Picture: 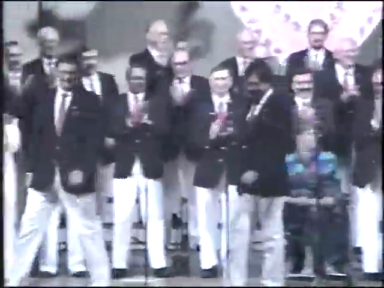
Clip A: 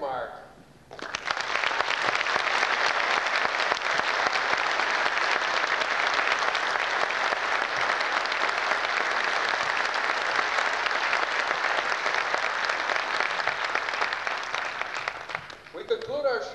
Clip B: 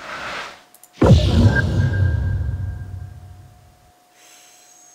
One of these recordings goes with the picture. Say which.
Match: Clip A